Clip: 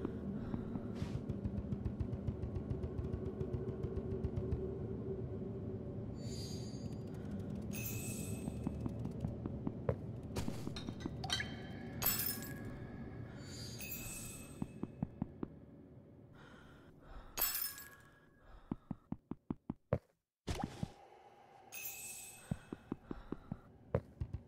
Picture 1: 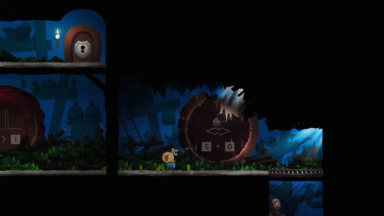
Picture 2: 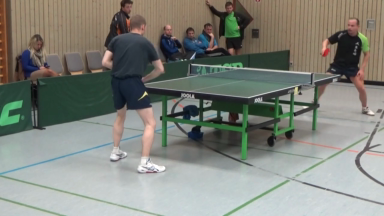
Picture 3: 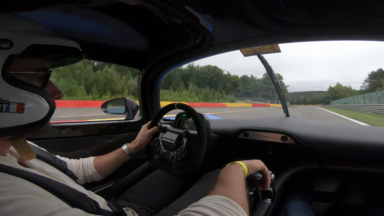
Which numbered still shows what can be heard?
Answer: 1